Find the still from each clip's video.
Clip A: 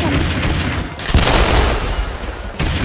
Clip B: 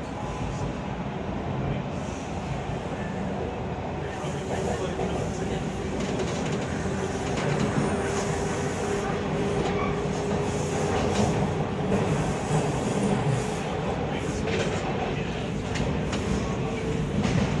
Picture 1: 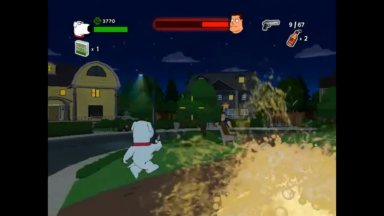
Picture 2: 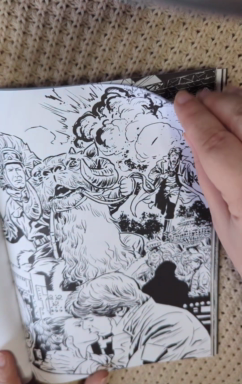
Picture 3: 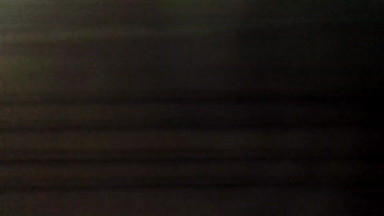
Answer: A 1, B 3